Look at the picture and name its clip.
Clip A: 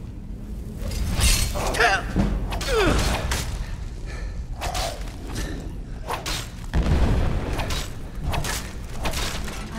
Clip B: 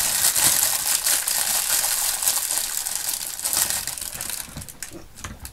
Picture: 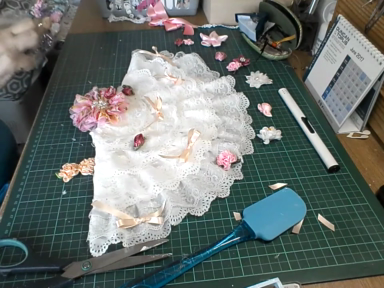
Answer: B